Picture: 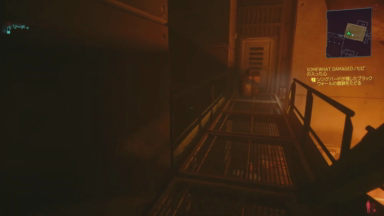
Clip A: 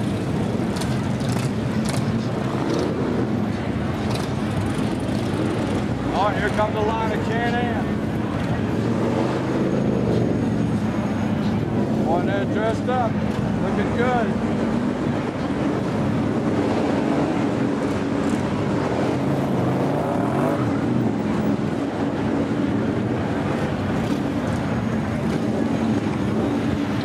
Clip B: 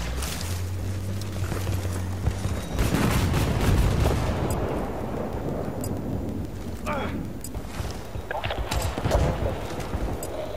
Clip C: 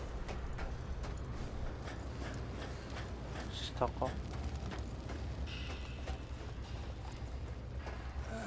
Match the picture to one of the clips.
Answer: C